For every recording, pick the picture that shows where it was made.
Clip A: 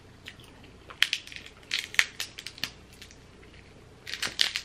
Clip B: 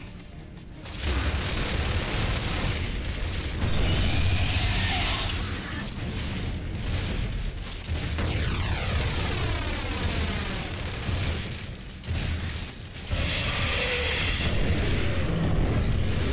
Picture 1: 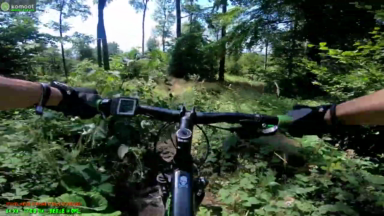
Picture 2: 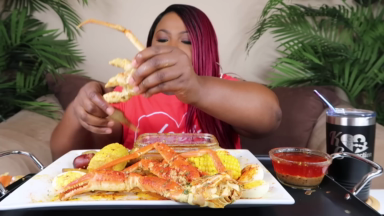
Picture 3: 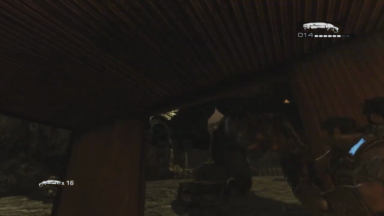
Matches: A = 2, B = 3